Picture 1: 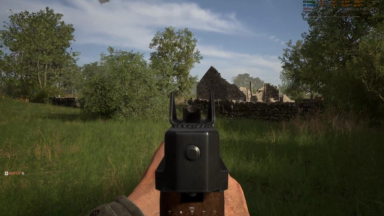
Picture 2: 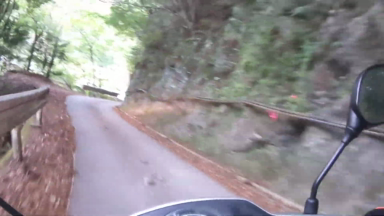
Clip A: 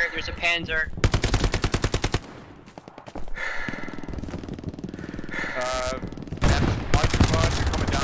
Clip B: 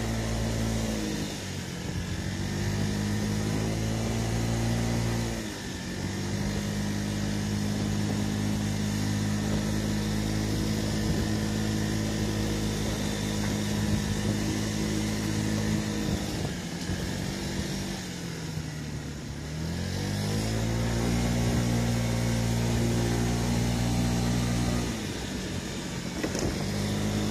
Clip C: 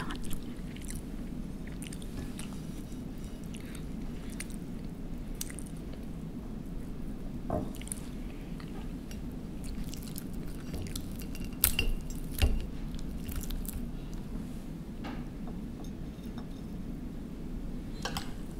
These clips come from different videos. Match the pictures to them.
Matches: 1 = A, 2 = B